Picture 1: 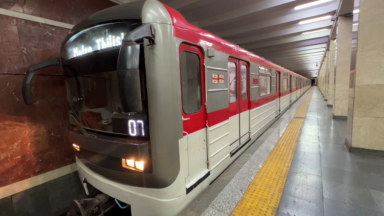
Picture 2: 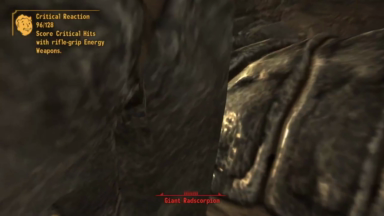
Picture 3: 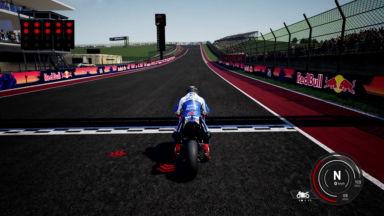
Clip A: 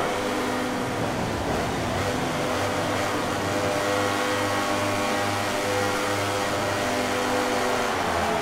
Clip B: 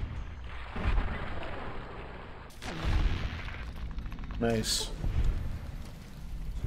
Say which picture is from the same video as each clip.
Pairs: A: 3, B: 2